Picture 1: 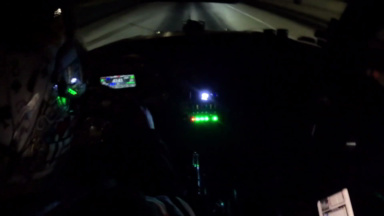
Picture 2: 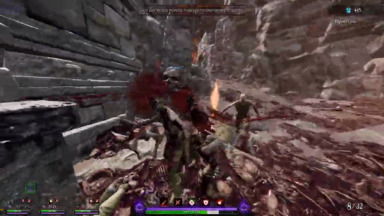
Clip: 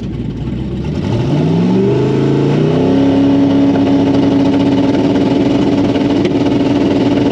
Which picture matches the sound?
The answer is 1